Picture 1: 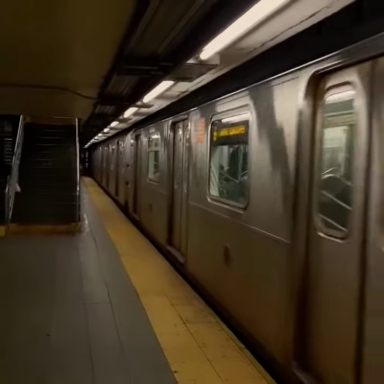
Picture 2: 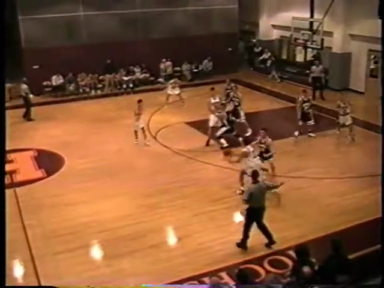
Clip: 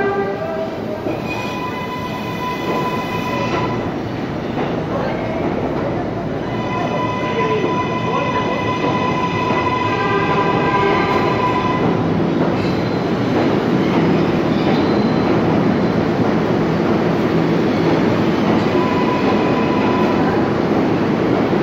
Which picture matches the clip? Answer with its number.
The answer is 1